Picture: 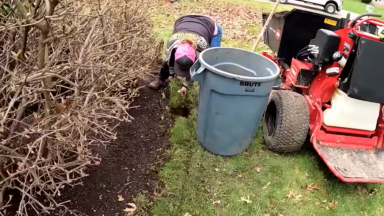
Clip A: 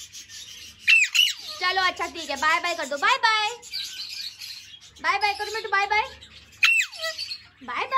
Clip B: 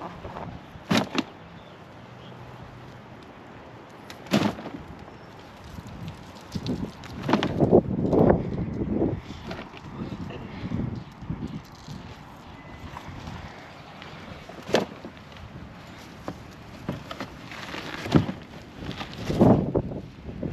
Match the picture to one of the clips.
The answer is B